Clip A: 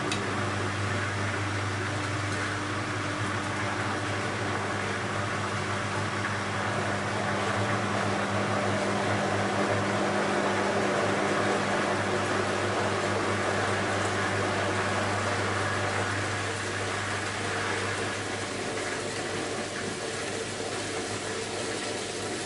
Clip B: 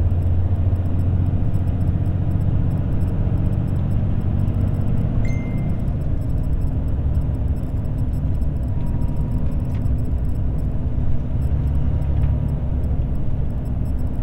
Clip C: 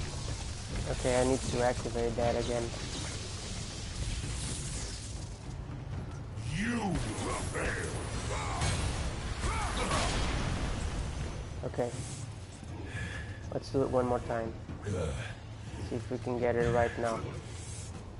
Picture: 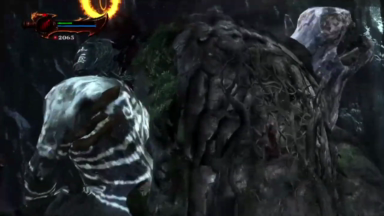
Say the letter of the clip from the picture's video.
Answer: C